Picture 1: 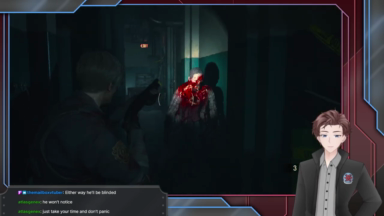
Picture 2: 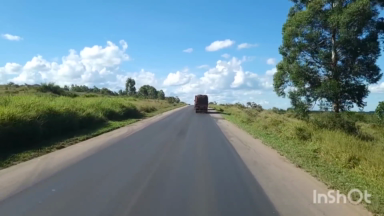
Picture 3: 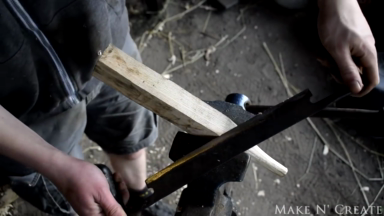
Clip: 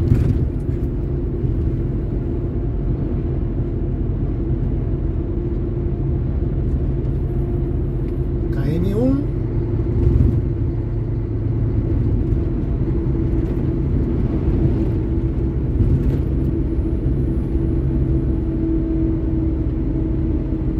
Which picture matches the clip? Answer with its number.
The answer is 2